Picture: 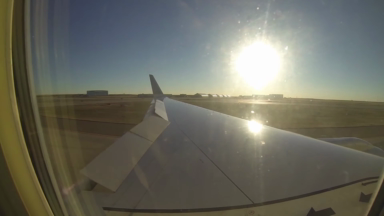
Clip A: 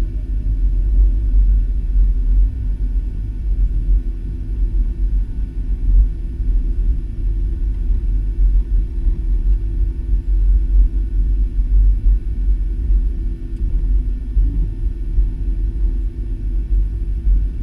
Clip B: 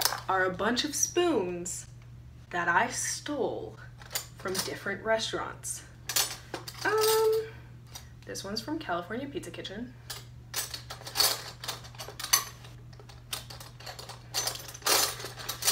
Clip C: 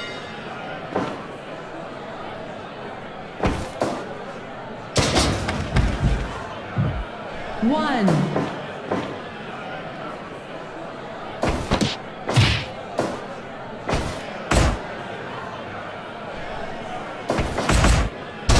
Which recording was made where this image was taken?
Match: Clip A